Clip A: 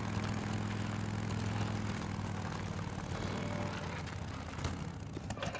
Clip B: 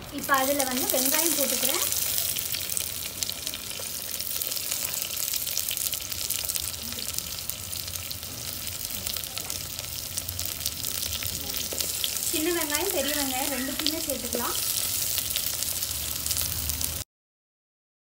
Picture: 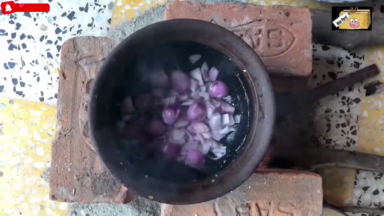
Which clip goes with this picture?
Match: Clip B